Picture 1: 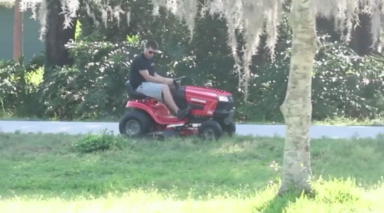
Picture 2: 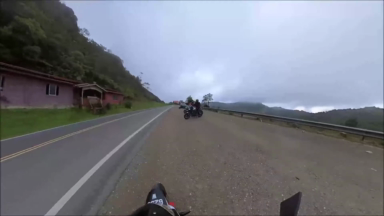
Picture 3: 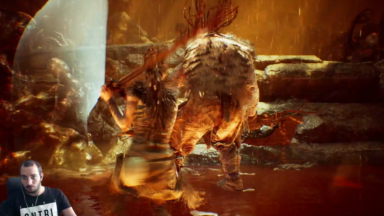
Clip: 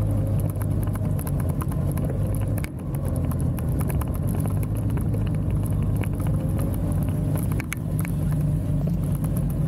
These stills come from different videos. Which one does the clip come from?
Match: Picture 2